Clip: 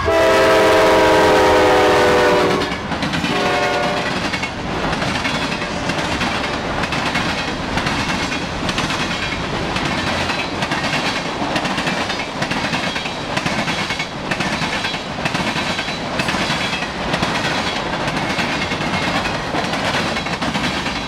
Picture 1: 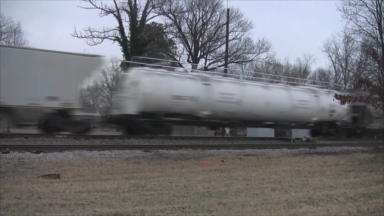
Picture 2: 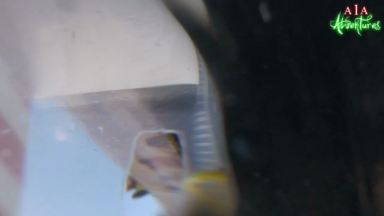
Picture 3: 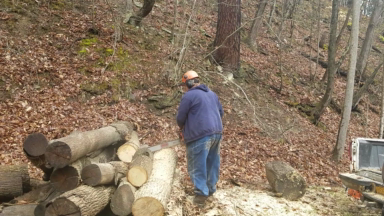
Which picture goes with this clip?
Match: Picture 1